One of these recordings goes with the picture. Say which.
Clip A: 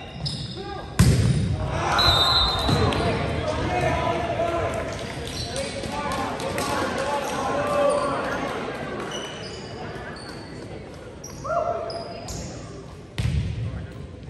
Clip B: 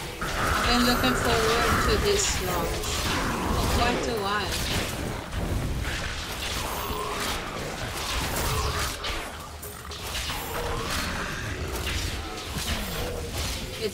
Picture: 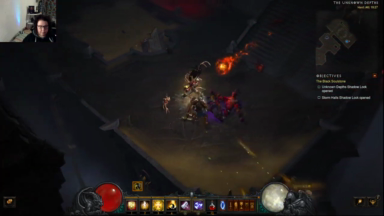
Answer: B